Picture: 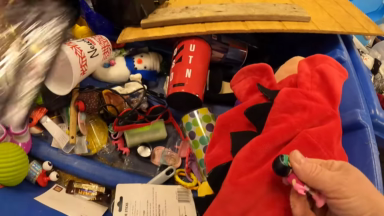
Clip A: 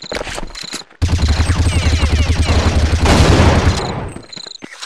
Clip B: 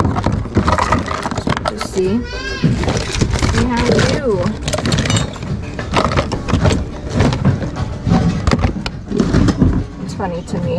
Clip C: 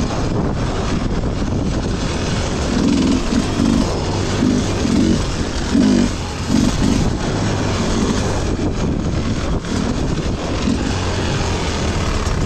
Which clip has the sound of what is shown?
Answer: B